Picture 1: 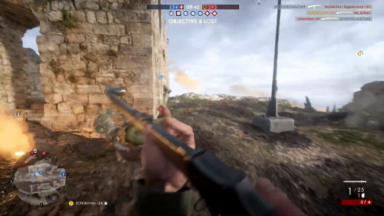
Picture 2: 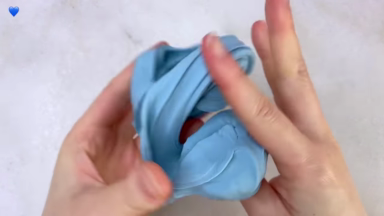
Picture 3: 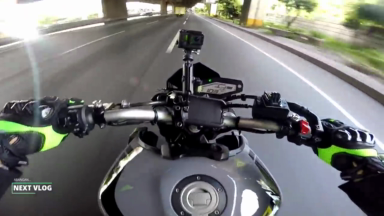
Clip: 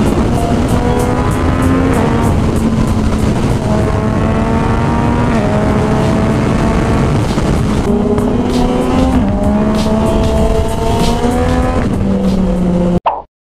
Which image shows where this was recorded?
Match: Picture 3